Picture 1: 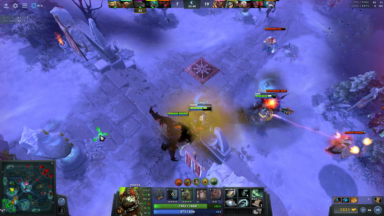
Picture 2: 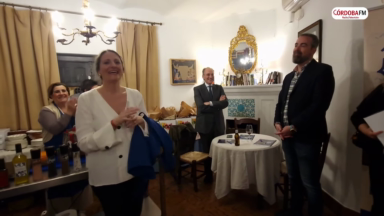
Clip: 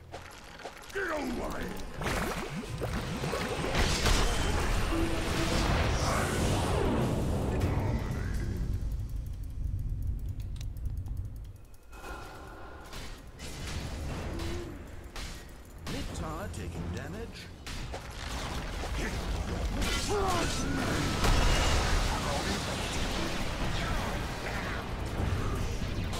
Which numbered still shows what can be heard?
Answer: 1